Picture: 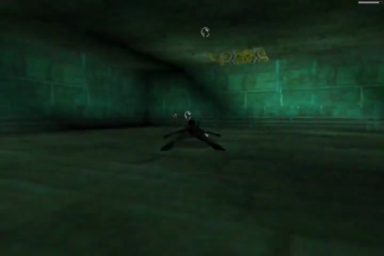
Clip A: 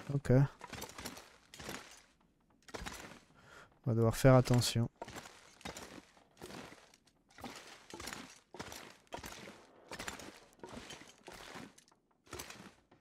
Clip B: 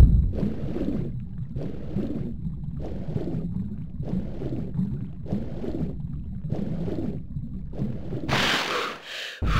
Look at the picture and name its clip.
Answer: B